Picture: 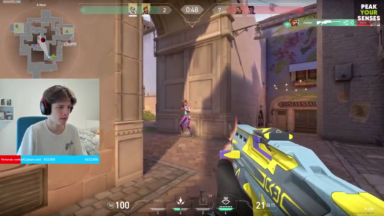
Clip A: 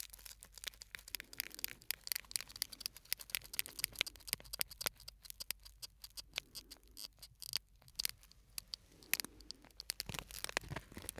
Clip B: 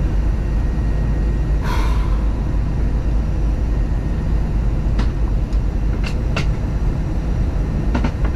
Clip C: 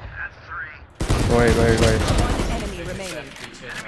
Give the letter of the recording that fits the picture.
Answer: C